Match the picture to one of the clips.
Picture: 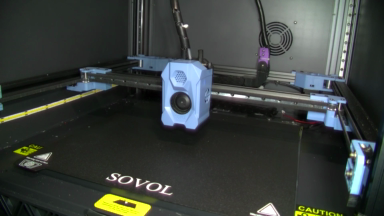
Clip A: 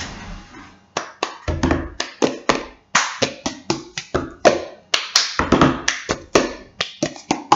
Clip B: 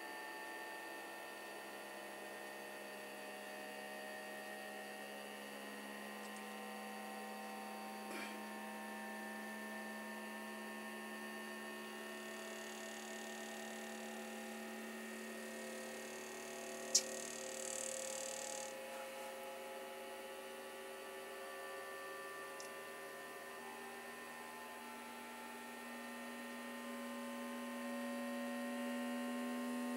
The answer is B